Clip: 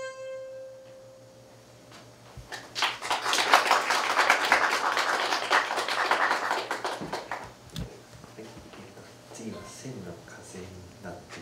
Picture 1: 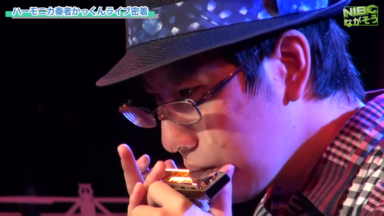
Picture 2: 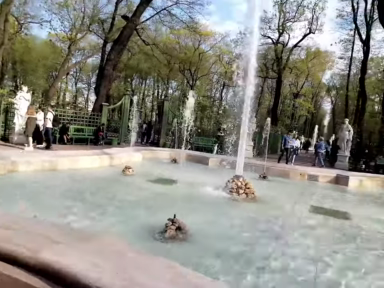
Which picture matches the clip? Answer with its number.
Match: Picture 1